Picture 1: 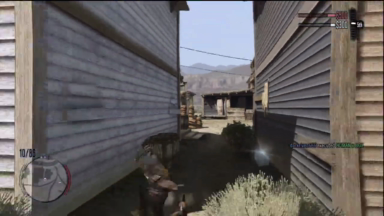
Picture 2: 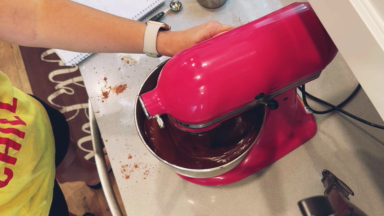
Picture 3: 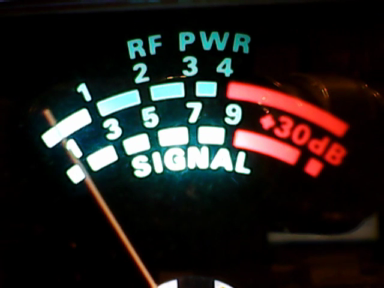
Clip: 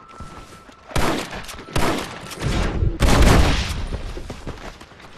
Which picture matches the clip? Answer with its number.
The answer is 1